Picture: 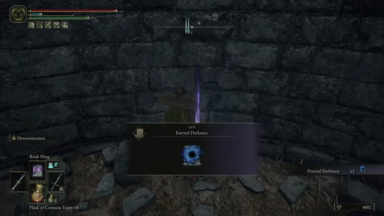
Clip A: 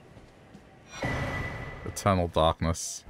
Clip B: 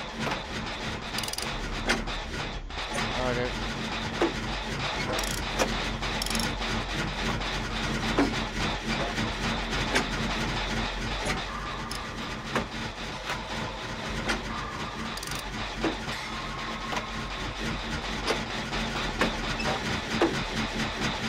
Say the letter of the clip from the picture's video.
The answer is A